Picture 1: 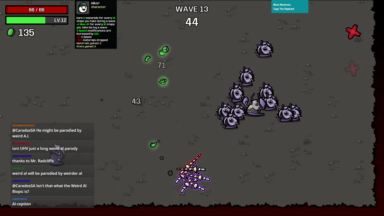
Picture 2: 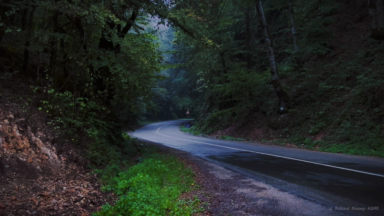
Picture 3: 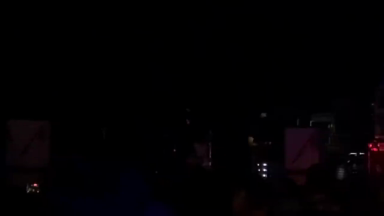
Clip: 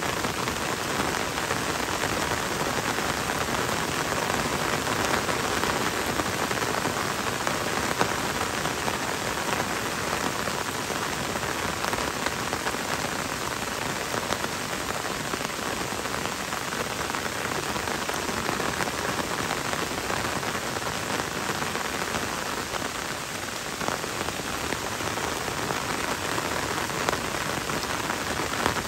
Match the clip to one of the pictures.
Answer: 2